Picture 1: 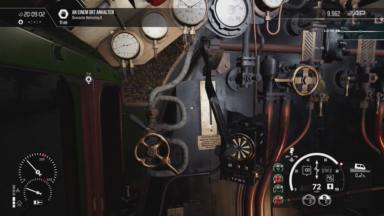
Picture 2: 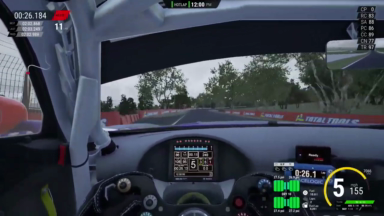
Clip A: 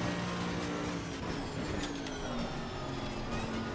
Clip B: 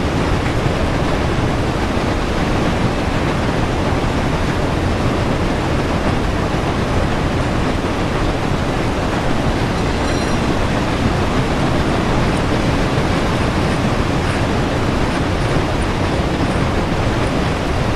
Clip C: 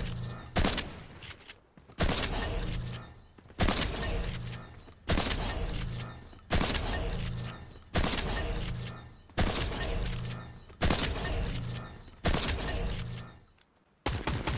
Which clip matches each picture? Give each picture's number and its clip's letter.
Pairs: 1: B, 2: A